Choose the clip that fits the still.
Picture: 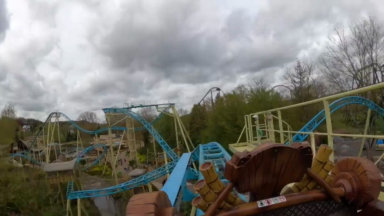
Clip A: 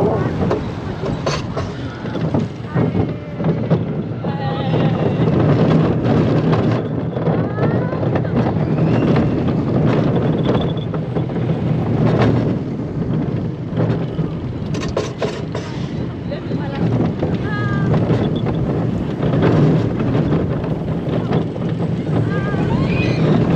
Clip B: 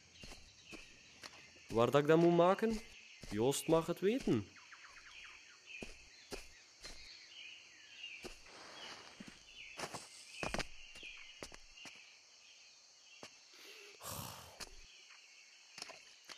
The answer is A